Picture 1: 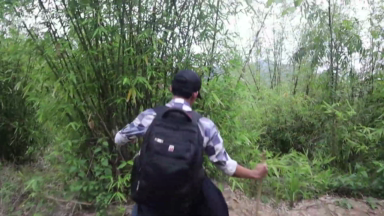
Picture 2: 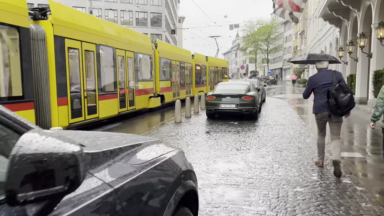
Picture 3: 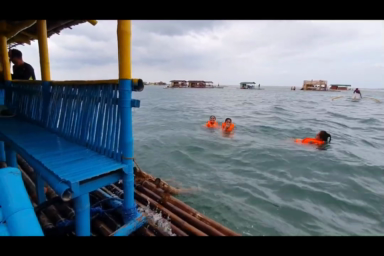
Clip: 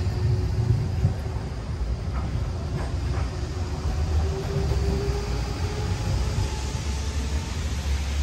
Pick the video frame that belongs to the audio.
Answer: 2